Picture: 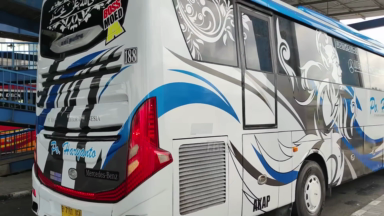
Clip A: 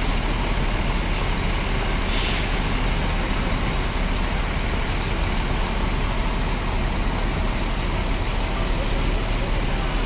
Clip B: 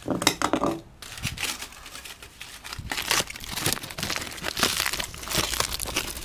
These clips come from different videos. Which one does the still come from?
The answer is A